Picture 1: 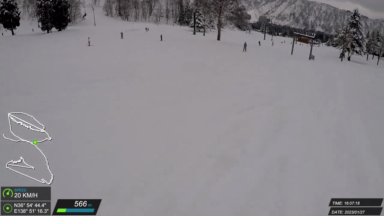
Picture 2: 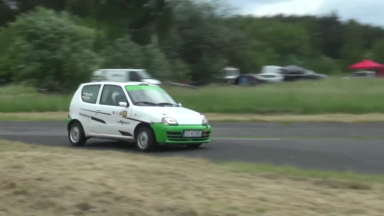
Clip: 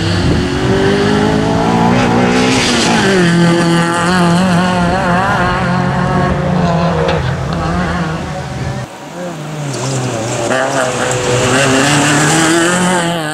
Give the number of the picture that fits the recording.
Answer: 2